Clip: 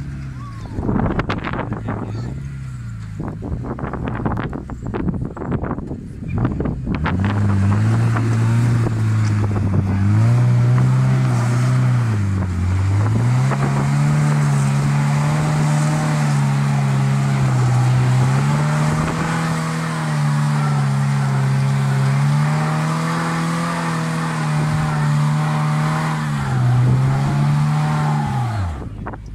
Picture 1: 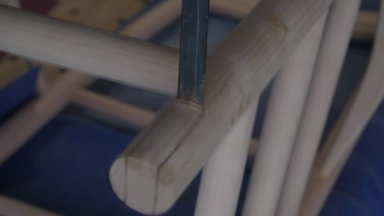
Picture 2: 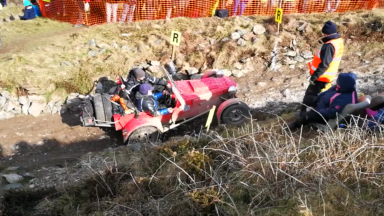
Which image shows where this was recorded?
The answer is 2